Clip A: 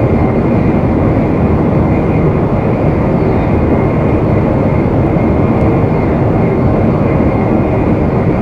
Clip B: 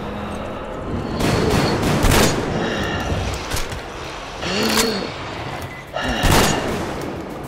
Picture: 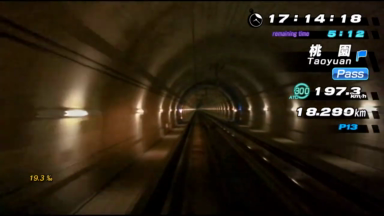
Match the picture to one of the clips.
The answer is A